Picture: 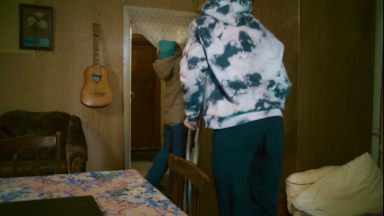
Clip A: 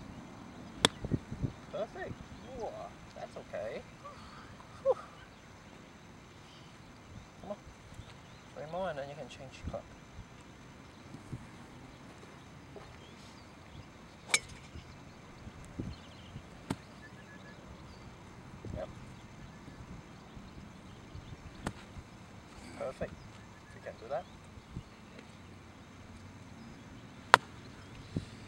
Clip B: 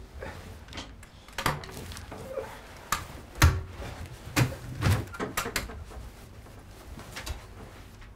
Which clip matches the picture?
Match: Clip B